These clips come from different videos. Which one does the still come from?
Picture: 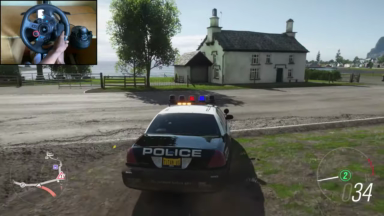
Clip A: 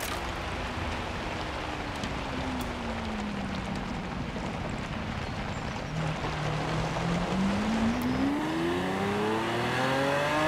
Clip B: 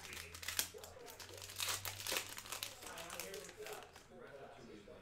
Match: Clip A